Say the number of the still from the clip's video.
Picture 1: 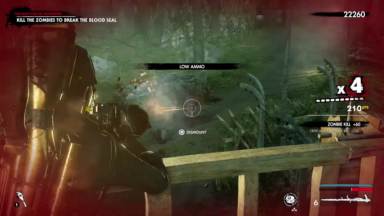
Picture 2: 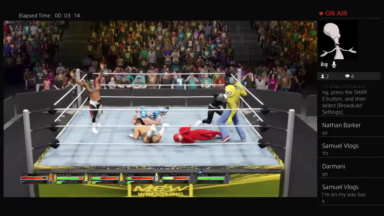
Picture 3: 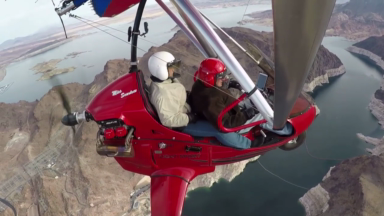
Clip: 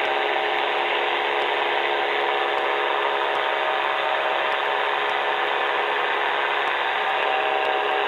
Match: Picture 3